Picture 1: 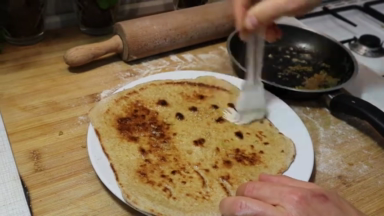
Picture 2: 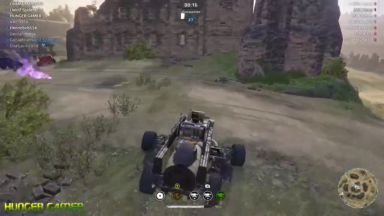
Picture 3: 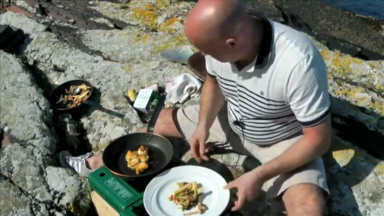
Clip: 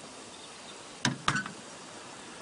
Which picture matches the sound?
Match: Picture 3